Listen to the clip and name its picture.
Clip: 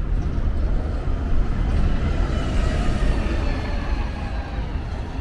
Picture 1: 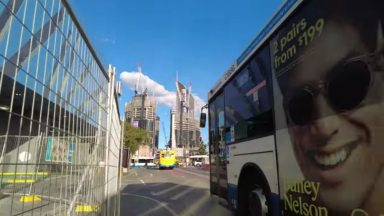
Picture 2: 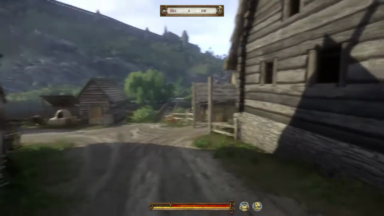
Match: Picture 1